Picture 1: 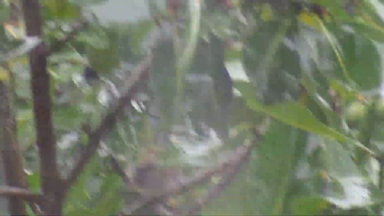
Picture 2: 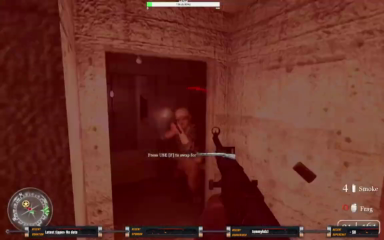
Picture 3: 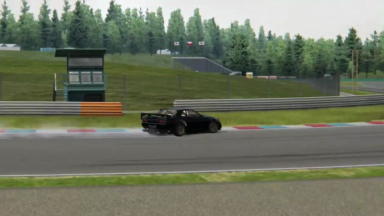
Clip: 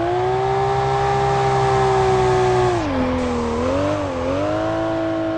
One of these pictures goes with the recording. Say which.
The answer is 3